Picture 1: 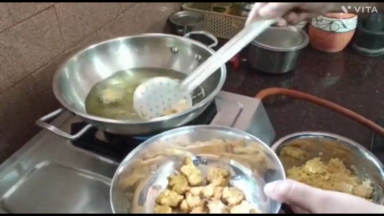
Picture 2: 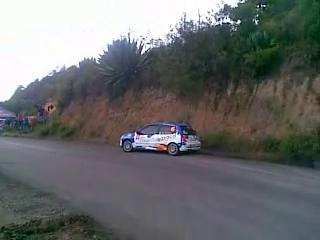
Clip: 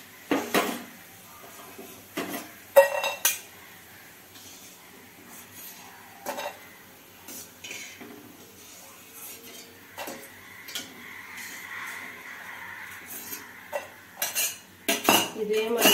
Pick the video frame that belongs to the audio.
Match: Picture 1